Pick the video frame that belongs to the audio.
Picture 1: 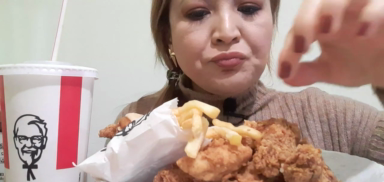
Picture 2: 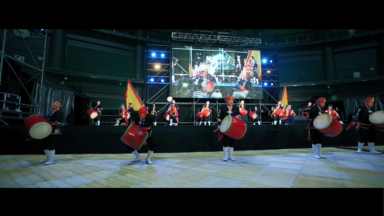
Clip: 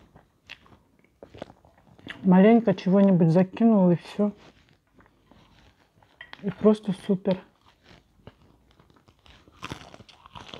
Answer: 1